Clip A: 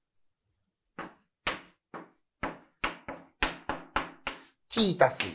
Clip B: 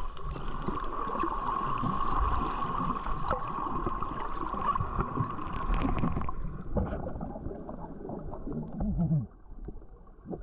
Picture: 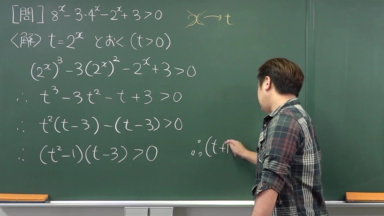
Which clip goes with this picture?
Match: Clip A